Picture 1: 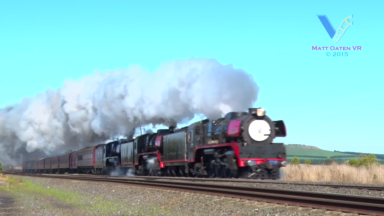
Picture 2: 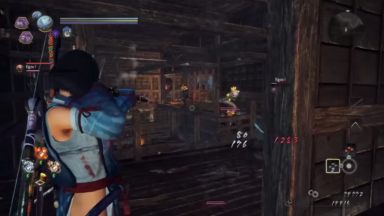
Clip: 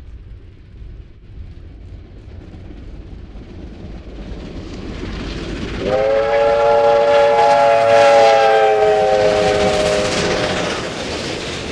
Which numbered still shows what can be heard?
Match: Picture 1